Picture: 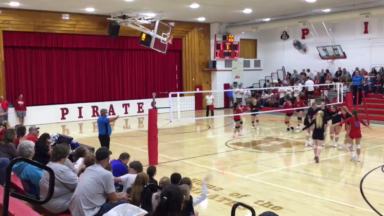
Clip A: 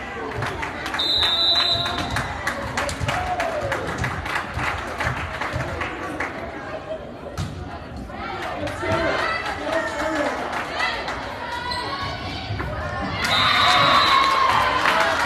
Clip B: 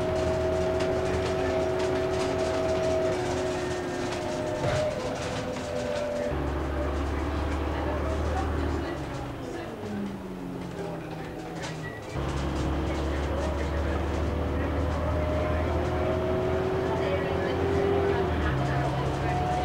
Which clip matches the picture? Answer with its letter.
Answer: A